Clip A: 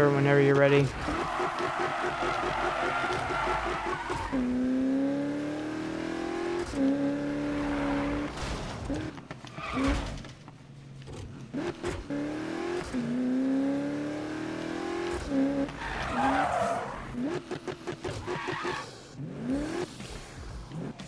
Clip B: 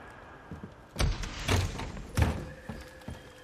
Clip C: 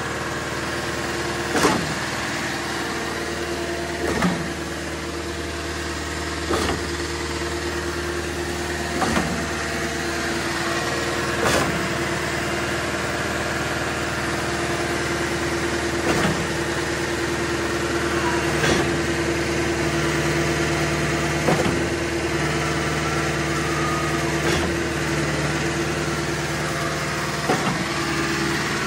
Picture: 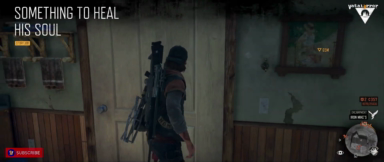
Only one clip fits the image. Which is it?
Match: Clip B